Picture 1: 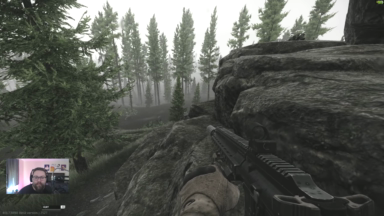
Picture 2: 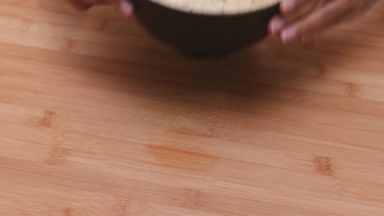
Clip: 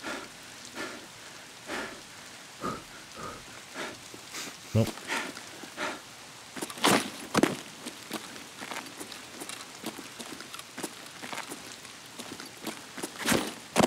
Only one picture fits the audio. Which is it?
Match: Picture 1